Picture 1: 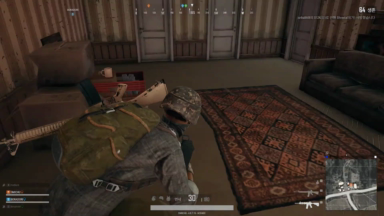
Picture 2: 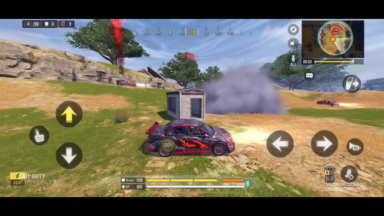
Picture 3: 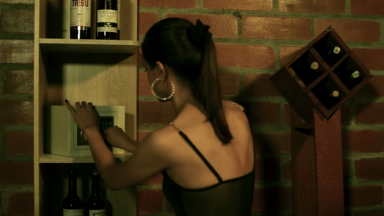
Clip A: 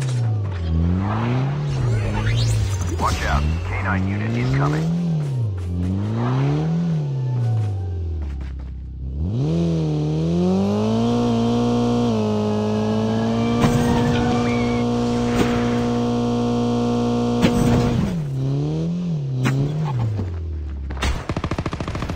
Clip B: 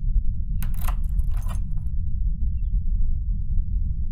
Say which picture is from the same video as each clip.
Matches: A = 2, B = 3